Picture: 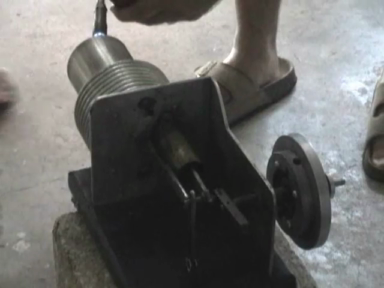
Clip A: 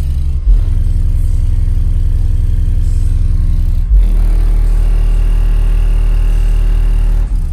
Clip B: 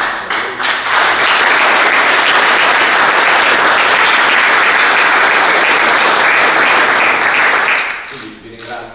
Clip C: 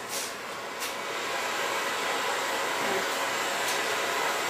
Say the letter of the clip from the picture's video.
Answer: C